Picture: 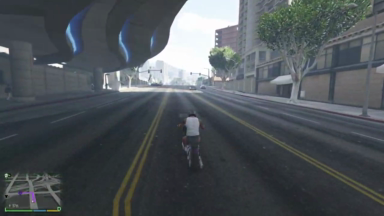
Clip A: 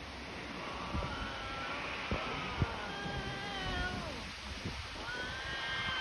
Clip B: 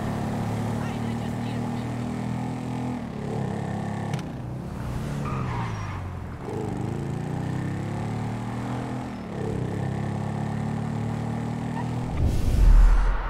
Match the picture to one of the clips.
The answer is B